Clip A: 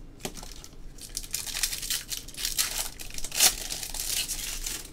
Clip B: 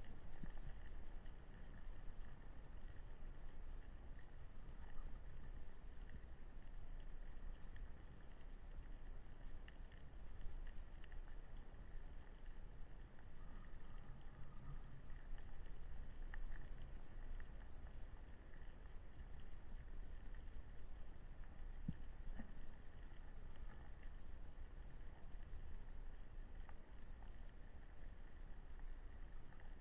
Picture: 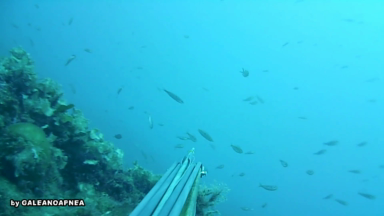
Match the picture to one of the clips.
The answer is B